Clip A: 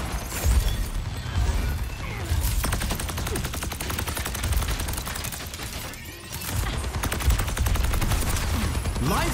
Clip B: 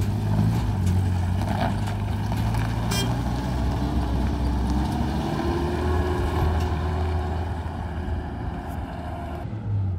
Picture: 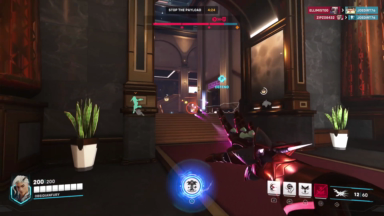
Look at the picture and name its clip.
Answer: A